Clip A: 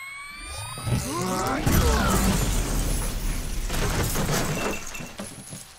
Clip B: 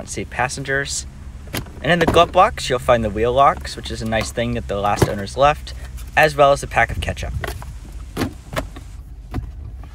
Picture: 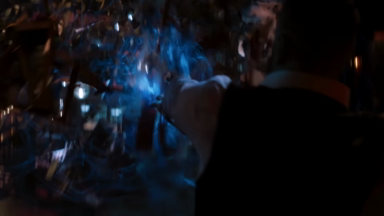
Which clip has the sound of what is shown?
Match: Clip A